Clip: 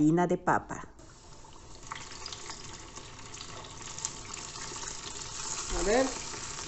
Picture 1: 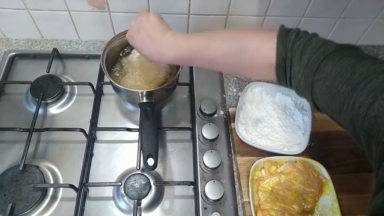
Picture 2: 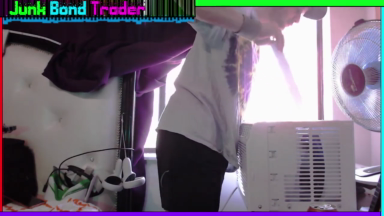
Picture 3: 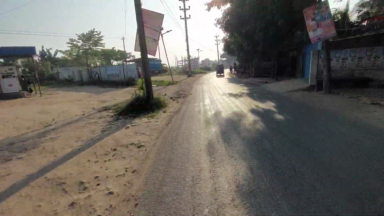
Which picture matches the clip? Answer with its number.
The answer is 1